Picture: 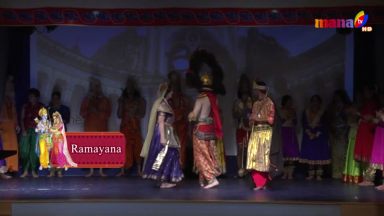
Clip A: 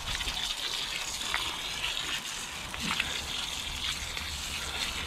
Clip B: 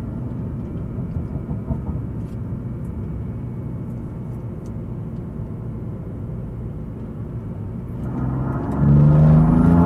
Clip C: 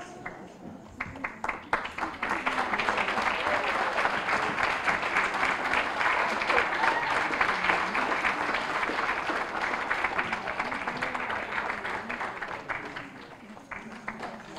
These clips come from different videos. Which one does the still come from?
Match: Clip C